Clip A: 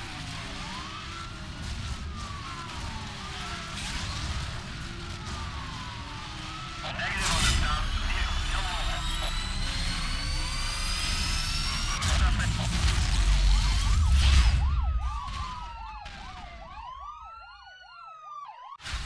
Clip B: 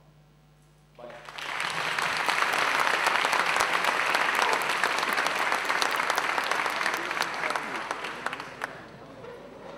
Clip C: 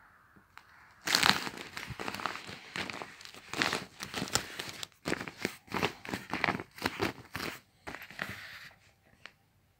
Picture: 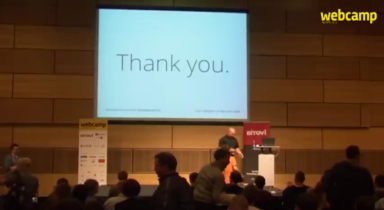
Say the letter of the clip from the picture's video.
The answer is B